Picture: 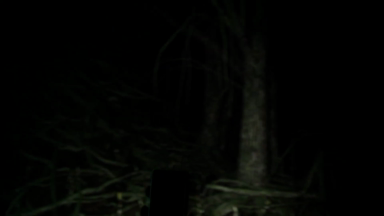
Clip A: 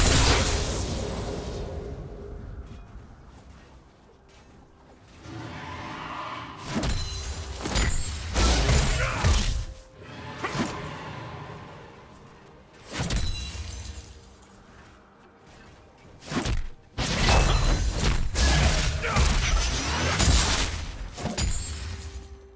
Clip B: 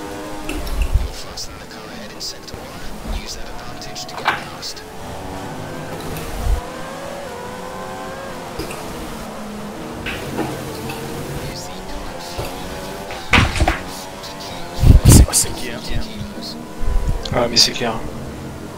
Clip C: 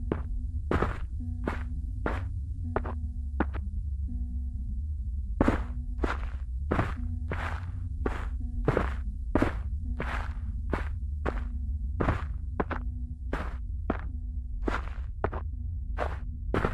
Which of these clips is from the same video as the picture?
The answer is C